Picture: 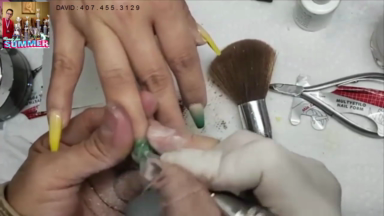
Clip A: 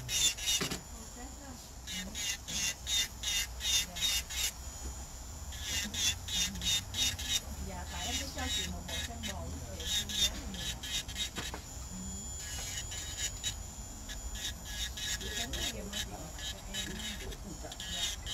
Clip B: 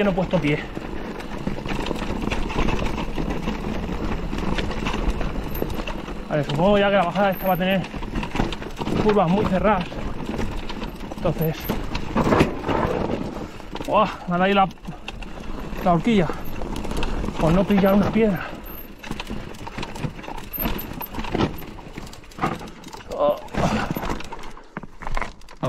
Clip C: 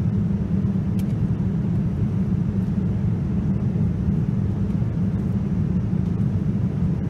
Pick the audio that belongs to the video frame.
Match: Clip A